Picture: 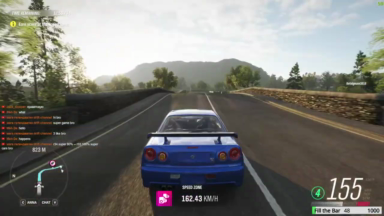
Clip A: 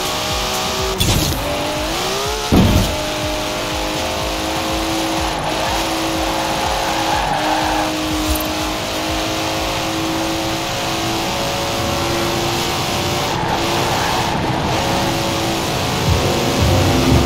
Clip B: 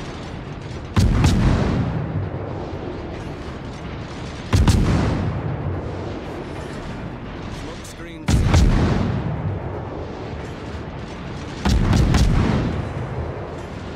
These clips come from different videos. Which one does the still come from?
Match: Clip A